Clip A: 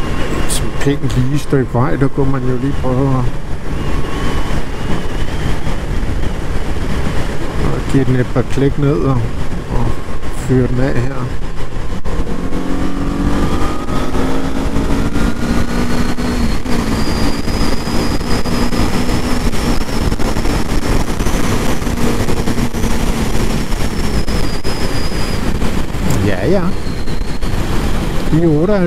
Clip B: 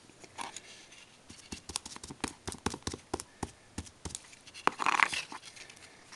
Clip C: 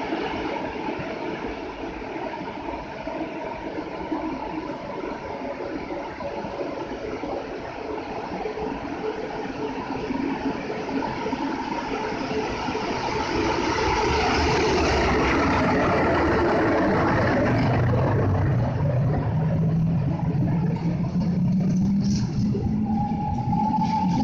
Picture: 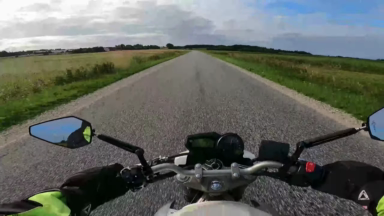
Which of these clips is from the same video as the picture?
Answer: A